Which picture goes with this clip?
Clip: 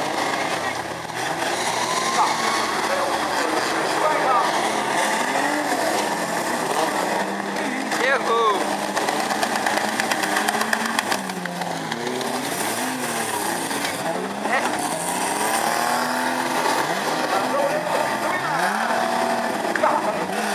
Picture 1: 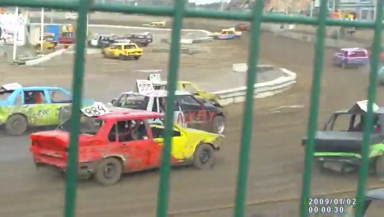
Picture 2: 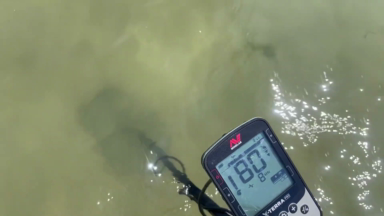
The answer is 1